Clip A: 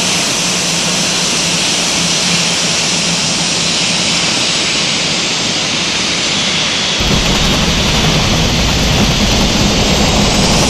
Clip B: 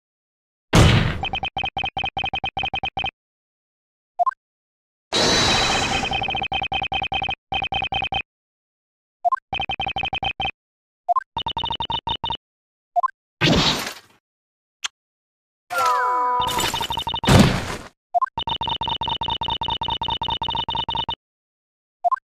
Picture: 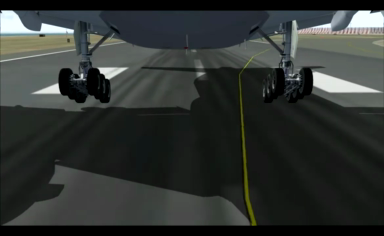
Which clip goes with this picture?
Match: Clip A